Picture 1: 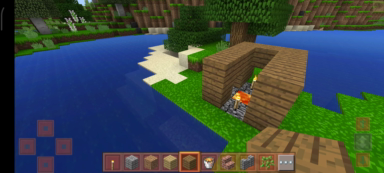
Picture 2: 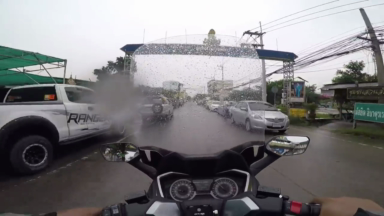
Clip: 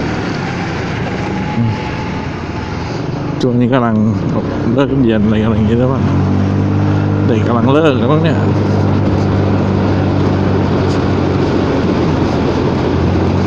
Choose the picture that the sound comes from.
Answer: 2